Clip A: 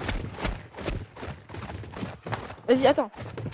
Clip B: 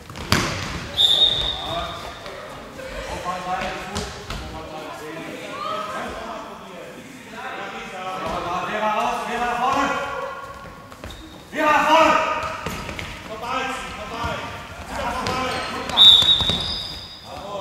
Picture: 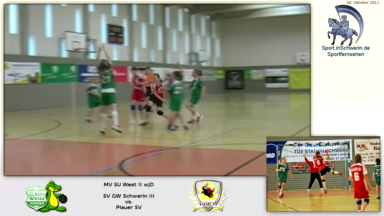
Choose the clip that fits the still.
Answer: B